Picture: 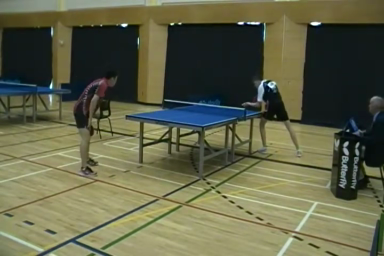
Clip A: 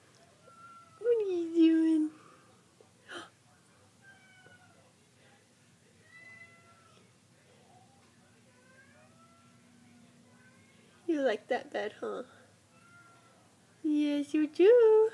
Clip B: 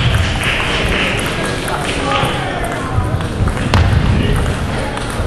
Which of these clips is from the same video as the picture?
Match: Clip B